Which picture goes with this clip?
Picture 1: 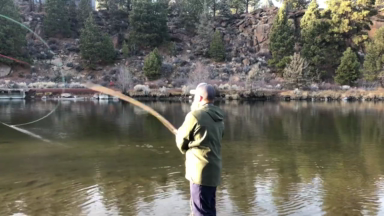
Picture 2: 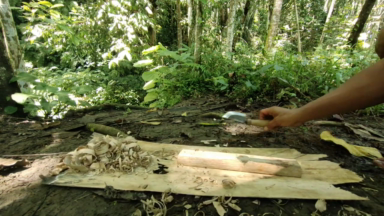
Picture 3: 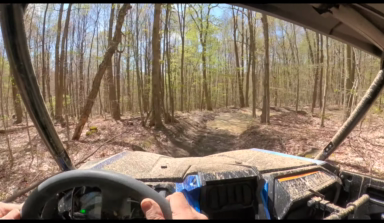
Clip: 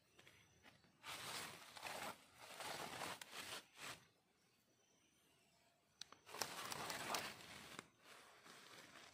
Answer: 2